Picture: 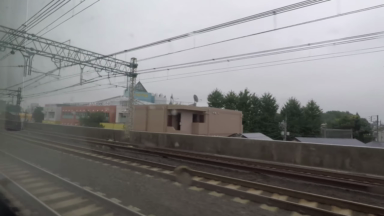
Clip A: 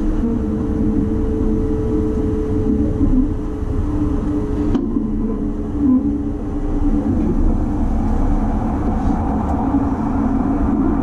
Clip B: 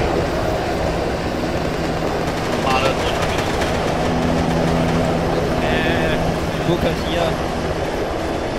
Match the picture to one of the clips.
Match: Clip A